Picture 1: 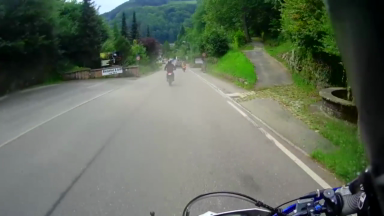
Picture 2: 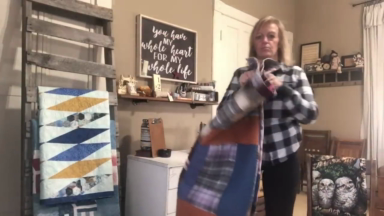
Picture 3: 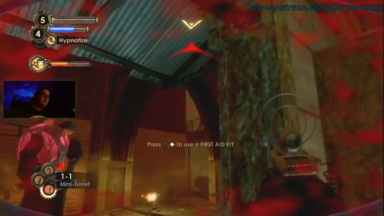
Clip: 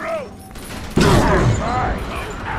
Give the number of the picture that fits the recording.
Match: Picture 3